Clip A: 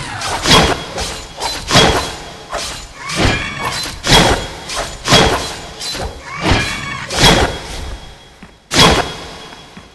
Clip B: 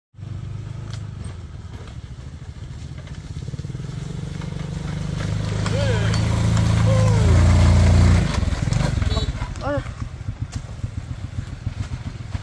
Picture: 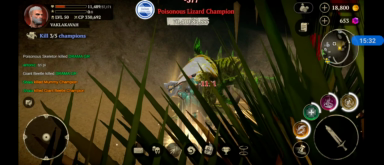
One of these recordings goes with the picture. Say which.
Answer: A